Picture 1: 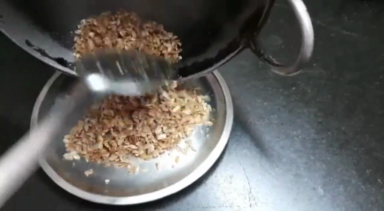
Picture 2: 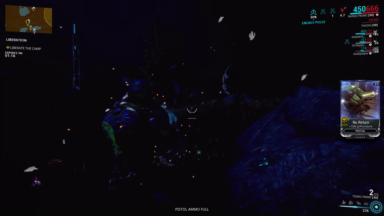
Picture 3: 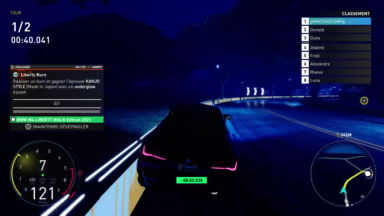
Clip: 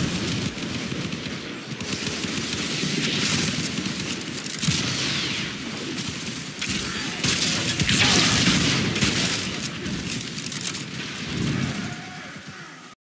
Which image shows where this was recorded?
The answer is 2